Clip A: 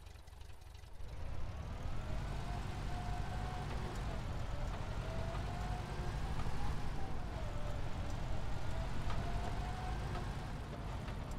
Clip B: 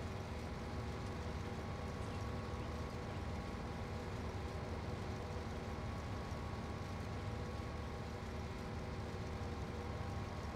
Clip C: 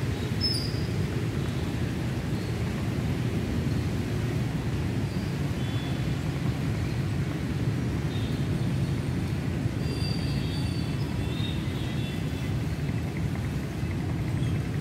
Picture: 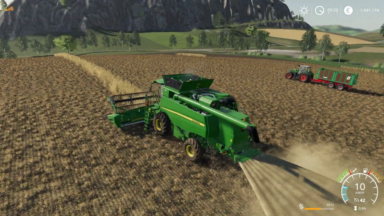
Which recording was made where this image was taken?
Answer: B